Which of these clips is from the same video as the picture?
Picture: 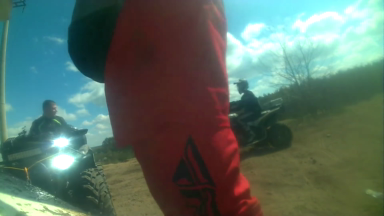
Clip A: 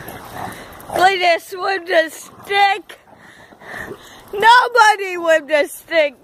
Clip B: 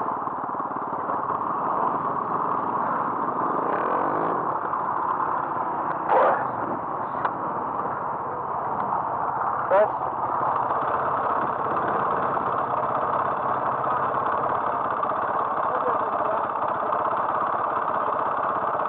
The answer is B